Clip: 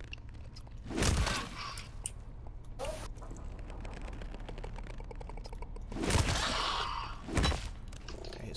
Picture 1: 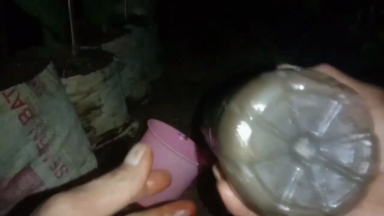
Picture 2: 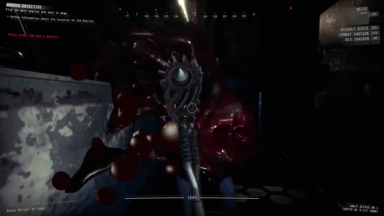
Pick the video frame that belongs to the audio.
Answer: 2